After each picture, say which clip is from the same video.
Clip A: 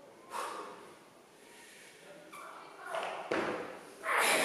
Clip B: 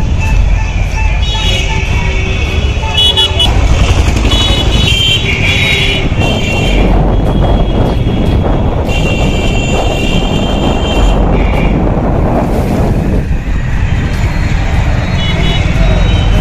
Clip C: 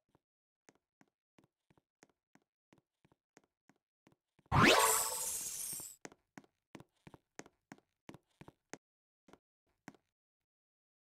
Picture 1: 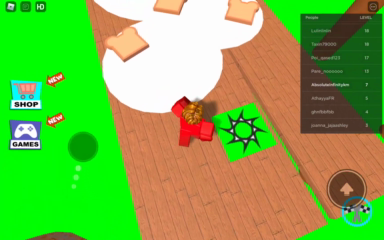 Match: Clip C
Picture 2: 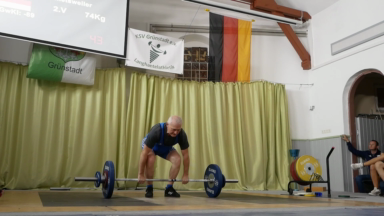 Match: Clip A